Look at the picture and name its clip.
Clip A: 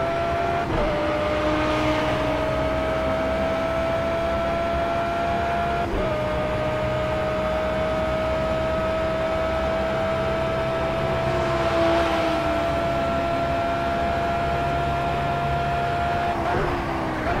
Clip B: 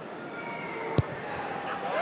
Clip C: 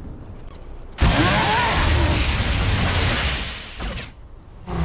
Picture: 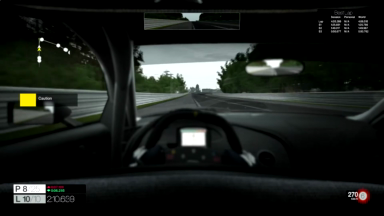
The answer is A